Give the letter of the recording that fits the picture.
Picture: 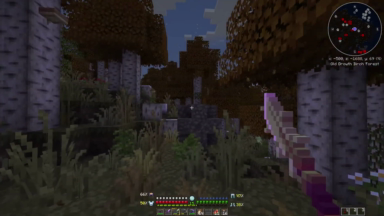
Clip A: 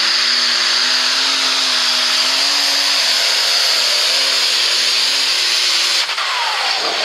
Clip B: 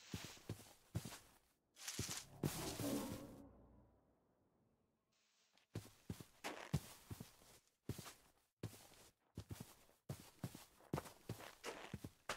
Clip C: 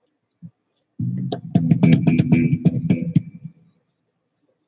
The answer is B